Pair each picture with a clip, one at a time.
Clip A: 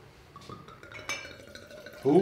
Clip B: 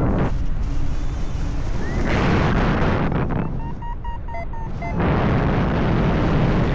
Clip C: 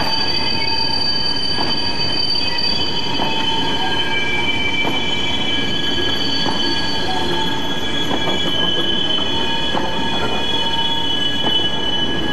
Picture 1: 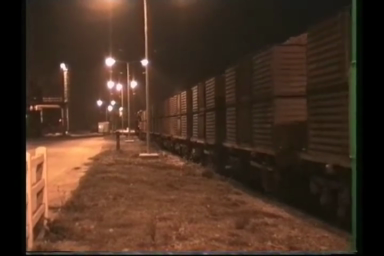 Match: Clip C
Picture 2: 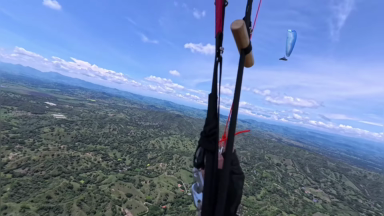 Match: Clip B